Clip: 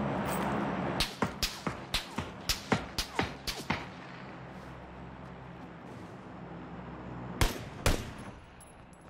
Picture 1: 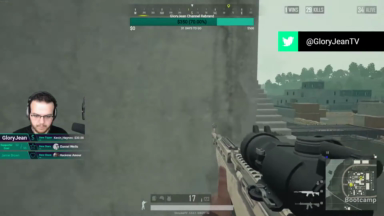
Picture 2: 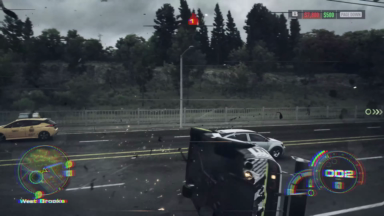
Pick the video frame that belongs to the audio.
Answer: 1